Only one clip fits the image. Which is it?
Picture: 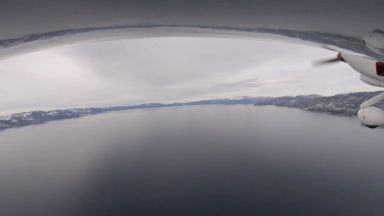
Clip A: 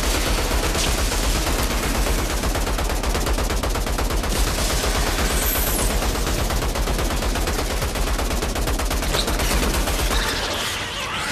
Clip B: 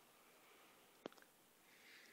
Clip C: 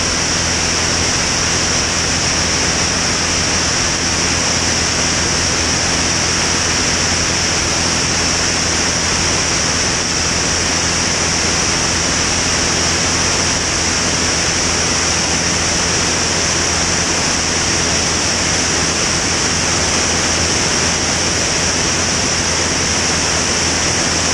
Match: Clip C